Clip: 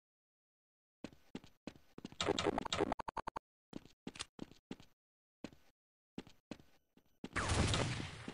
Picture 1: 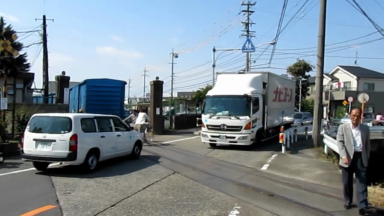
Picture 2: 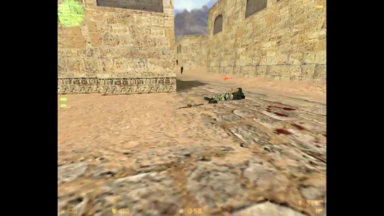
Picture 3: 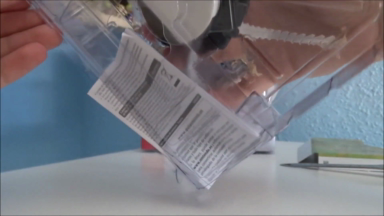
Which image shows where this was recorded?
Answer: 2